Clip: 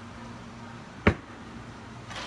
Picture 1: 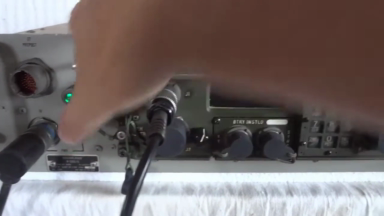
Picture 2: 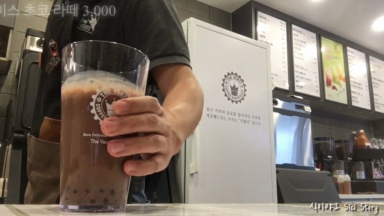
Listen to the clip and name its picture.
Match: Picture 2